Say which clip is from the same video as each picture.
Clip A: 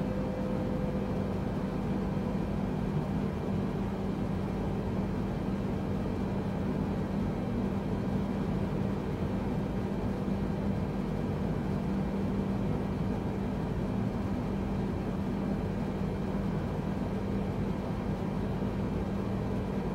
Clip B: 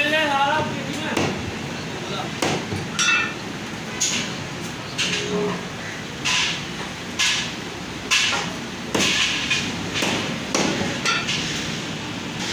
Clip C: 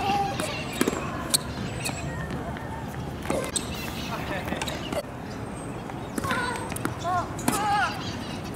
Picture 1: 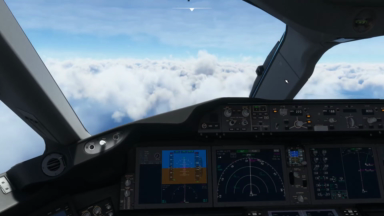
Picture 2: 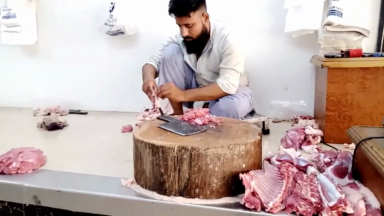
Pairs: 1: A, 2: B